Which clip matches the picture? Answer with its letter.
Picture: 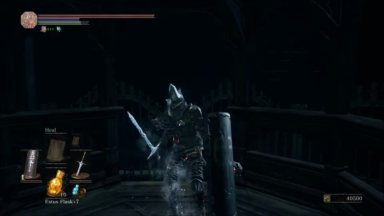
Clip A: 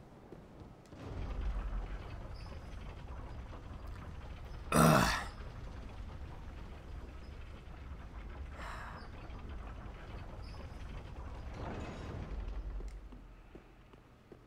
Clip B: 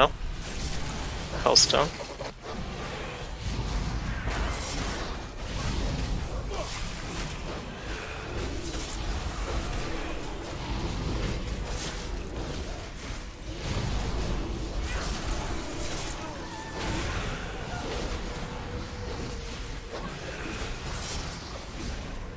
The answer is A